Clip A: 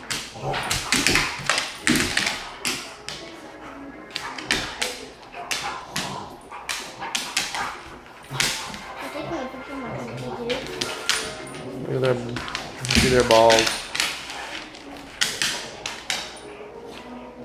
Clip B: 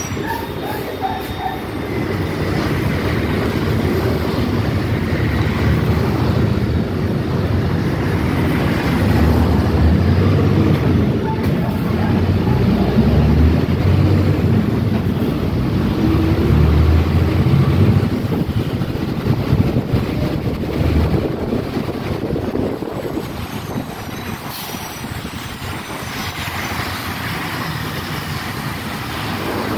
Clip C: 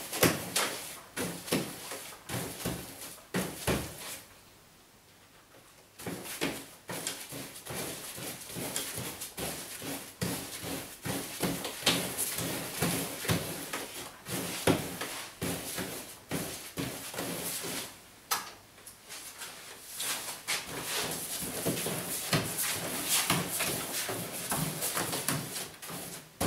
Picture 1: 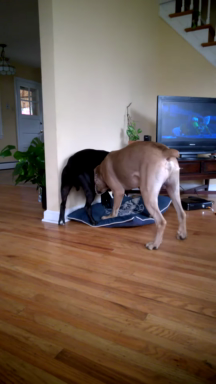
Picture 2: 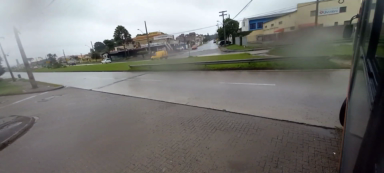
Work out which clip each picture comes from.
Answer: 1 A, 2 B